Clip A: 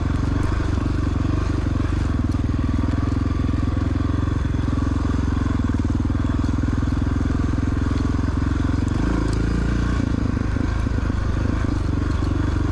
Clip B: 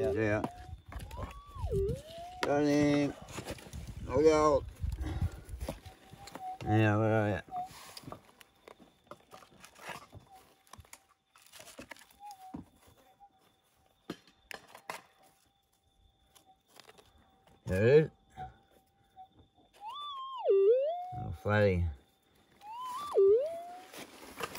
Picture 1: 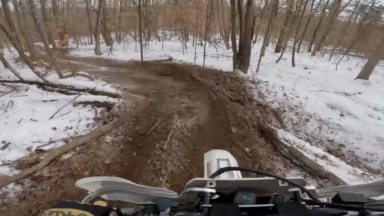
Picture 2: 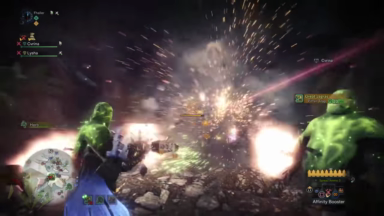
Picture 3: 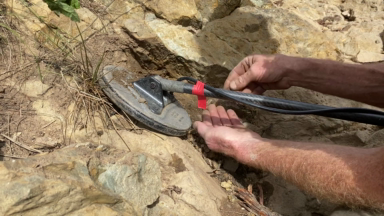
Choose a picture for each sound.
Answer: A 1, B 3